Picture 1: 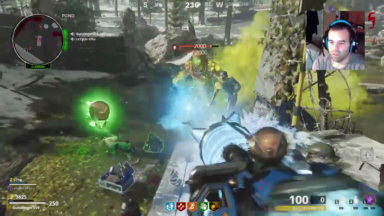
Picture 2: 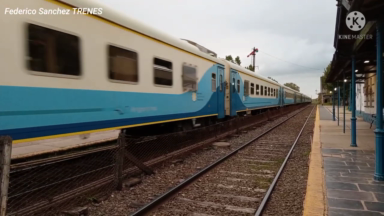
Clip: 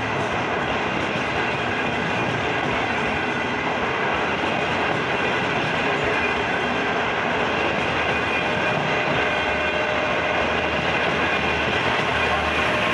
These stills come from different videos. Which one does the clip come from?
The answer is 2